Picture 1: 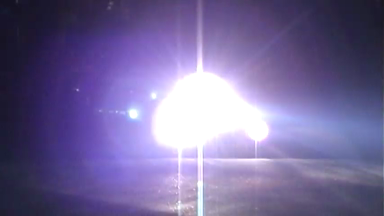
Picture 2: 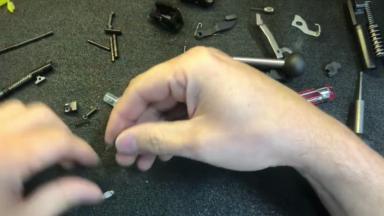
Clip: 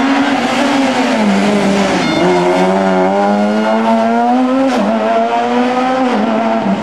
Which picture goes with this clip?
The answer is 1